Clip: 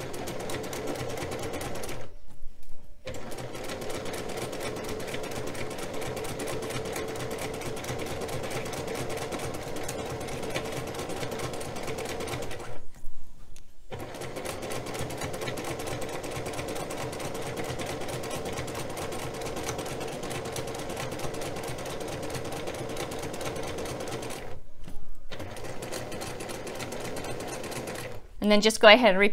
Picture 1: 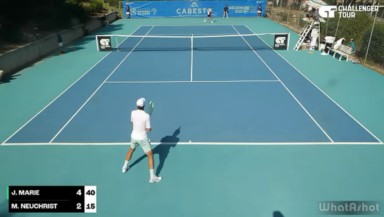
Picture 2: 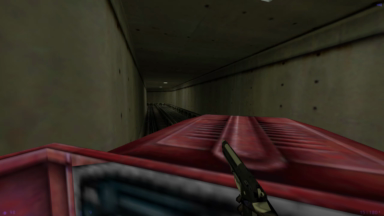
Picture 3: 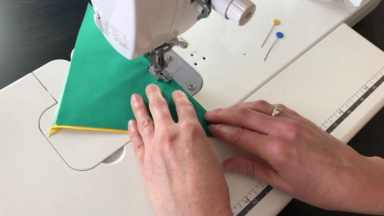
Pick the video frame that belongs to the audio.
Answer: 3